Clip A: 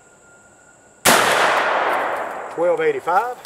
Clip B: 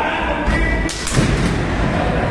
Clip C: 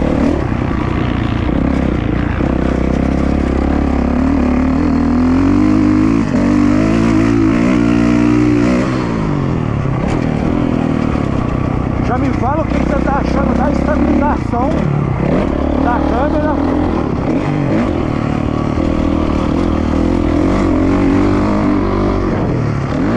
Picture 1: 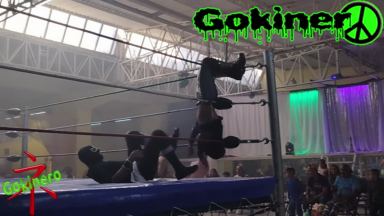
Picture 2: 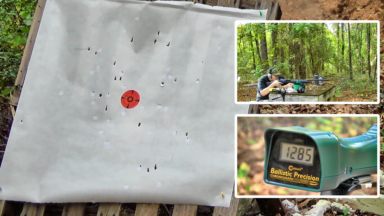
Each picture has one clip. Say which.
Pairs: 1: B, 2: A